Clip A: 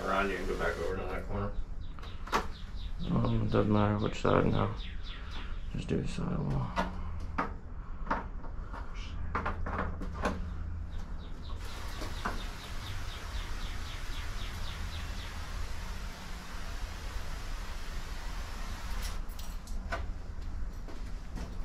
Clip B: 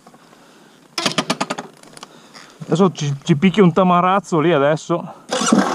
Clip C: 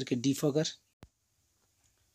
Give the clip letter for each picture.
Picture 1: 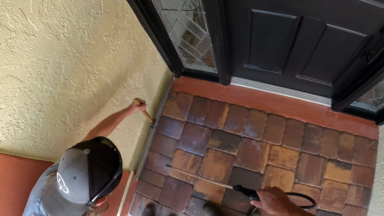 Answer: A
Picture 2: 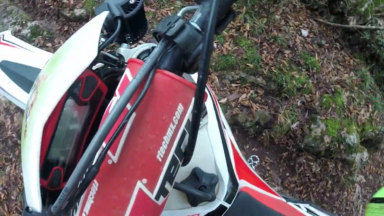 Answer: B